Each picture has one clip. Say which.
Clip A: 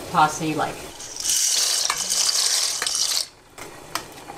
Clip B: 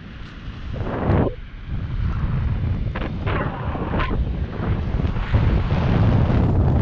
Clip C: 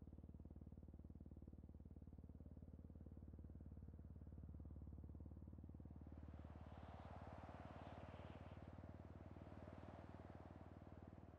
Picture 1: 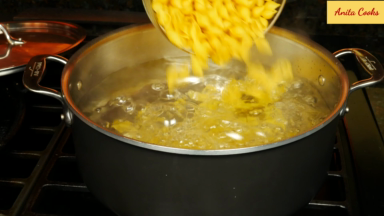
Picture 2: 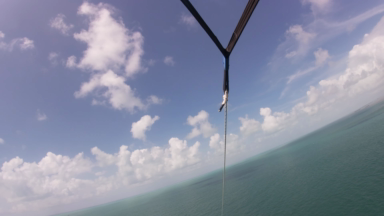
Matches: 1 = A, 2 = B